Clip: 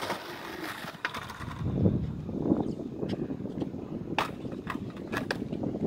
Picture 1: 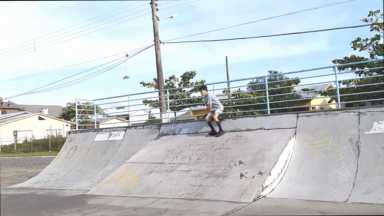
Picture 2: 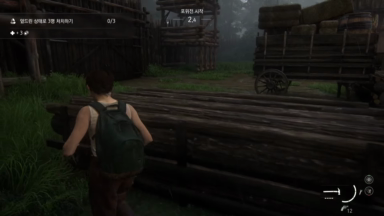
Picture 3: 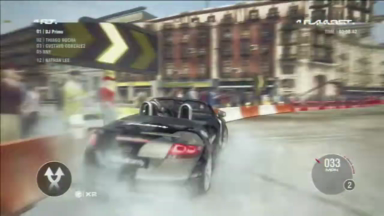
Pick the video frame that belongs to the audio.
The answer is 1